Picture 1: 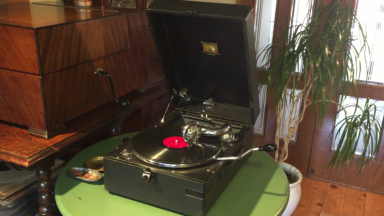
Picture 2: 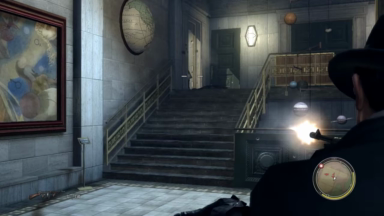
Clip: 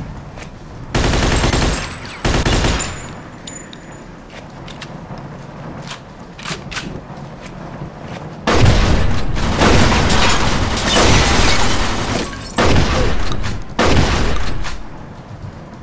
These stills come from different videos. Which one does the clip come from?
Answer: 2